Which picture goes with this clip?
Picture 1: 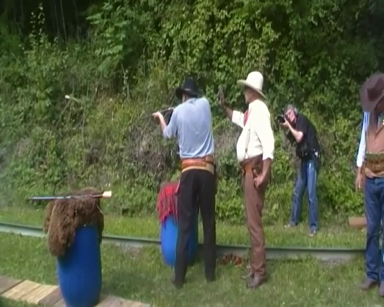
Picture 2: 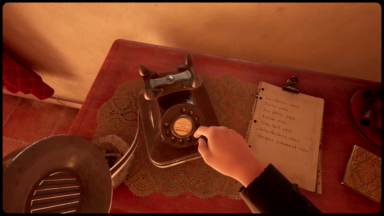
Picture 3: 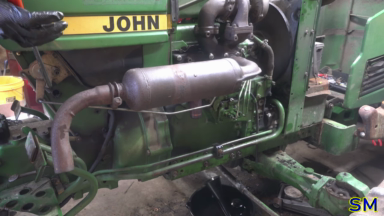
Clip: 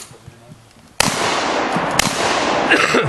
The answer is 1